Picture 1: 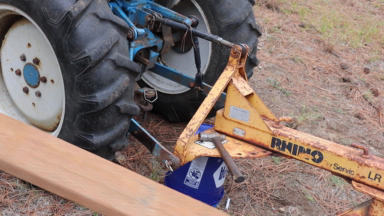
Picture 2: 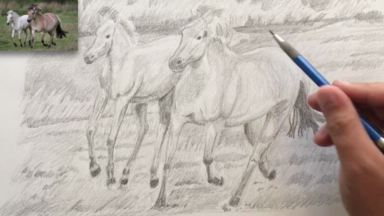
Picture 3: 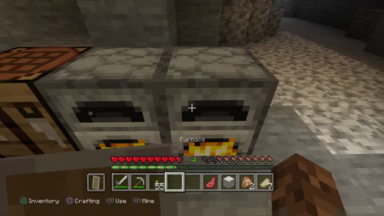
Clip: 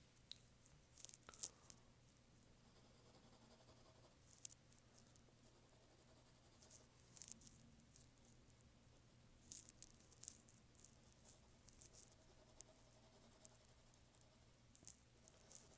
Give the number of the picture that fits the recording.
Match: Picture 2